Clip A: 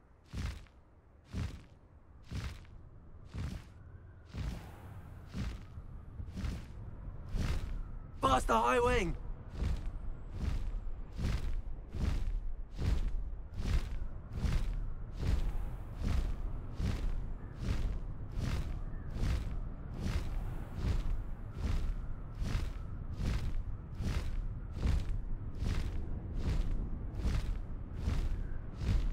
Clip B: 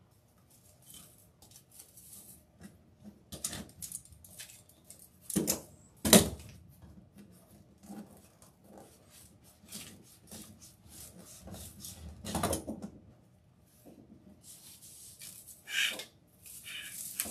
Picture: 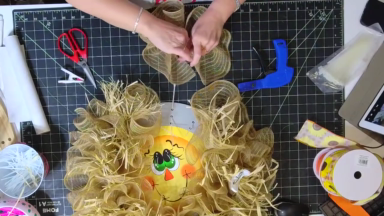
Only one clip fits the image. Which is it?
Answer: B